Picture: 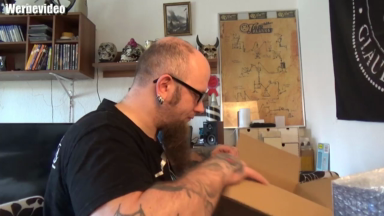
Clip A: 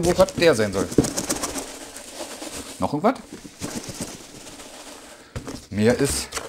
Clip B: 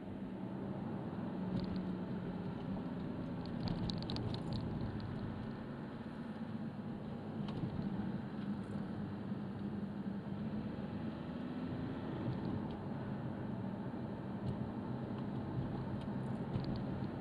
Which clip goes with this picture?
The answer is A